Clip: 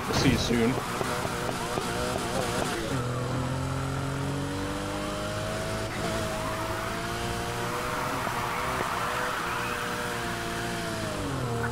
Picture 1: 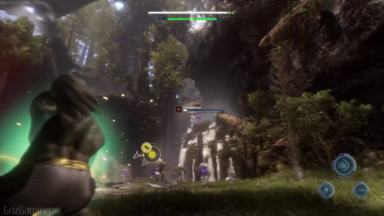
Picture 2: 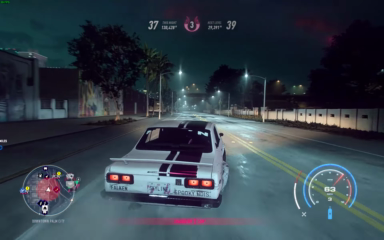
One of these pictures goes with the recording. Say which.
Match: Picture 2